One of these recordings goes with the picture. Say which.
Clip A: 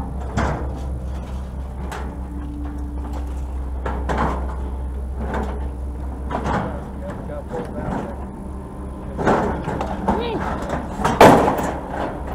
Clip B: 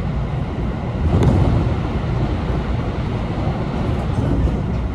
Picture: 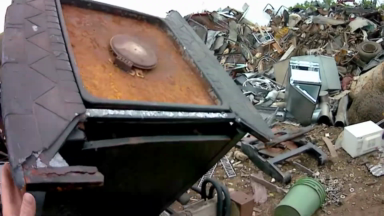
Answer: A